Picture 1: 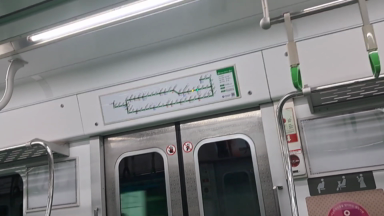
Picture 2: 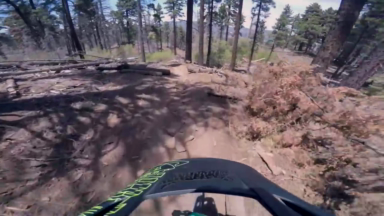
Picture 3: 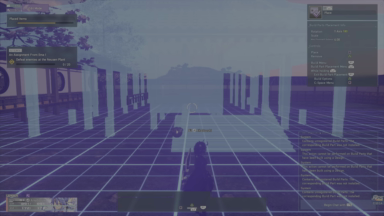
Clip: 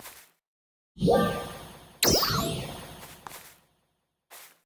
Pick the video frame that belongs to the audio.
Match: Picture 3